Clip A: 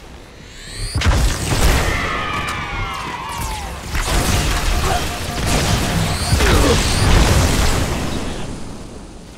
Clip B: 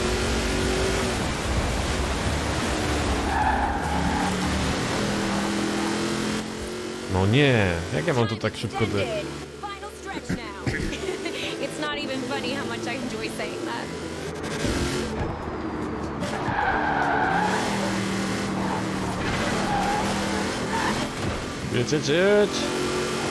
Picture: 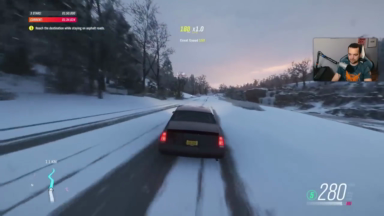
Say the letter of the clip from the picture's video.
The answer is B